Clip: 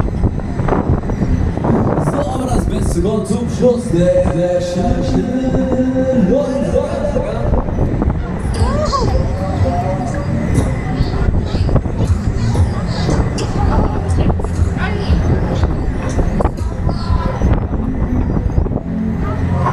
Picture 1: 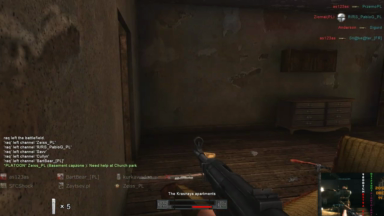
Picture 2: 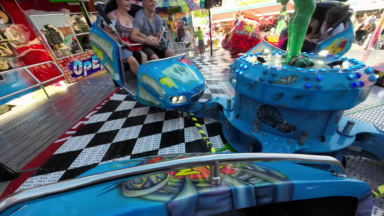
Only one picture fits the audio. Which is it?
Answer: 2